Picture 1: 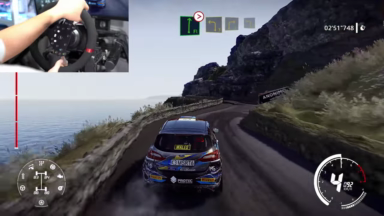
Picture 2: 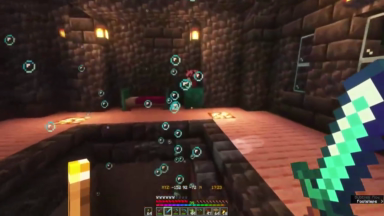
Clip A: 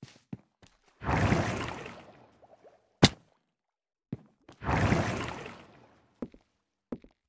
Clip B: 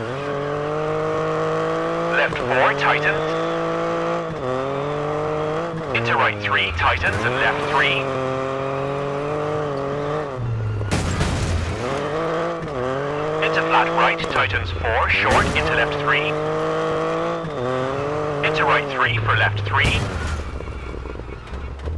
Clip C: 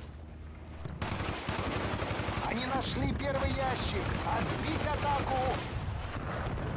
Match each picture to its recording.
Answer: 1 B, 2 A